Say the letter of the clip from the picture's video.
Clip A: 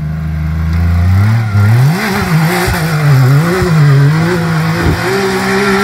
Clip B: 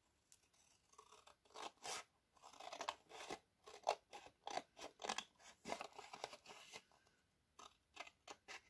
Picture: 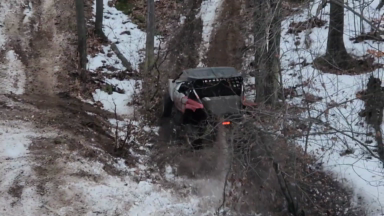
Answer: A